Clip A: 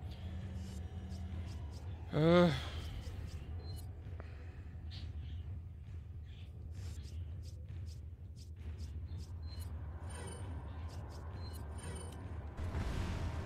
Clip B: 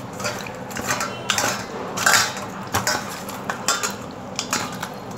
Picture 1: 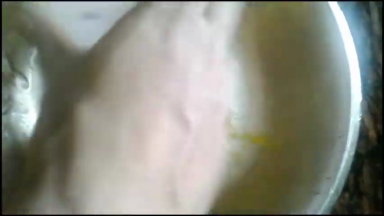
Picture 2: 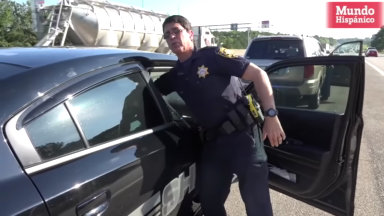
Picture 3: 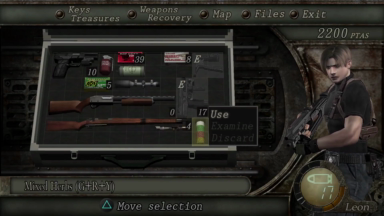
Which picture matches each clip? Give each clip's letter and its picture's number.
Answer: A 3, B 1